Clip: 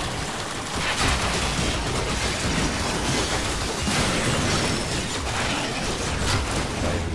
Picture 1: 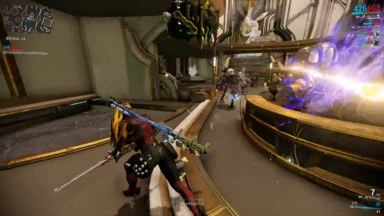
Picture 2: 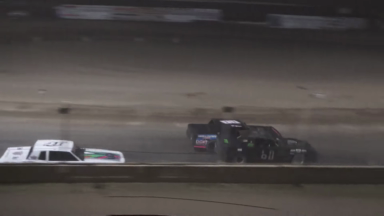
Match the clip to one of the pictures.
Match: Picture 1